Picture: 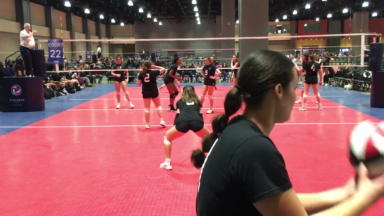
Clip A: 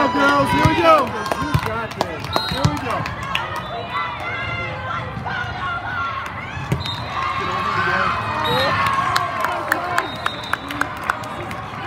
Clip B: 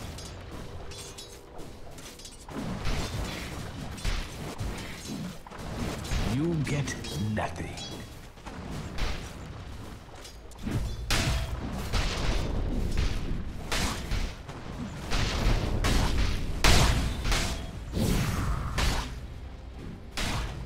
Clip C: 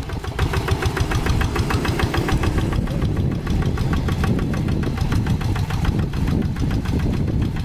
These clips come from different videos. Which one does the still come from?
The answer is A